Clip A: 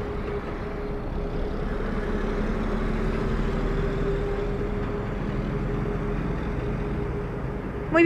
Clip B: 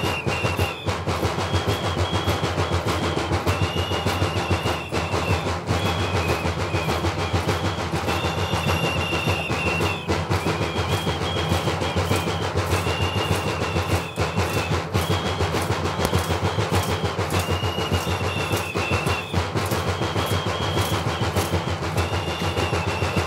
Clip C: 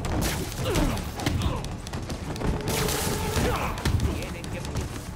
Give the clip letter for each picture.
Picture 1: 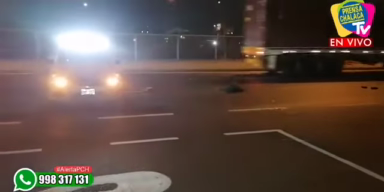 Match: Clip A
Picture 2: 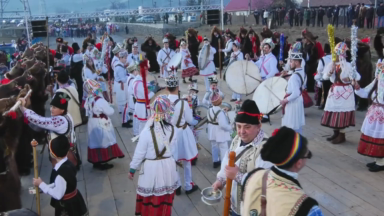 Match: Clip B